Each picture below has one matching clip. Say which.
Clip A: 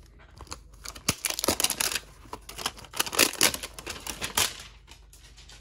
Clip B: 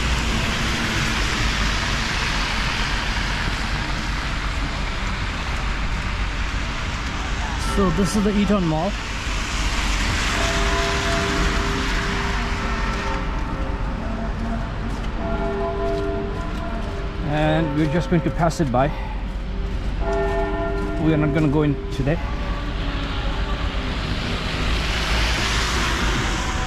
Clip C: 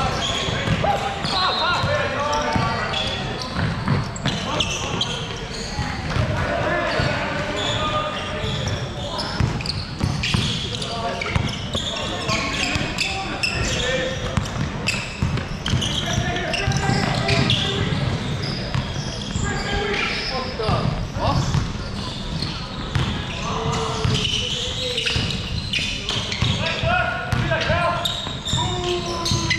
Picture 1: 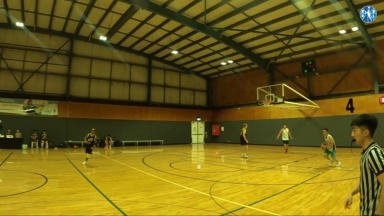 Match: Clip C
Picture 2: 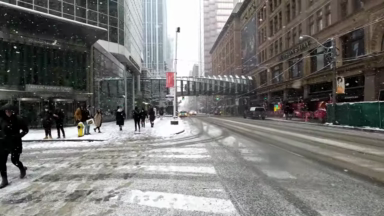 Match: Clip B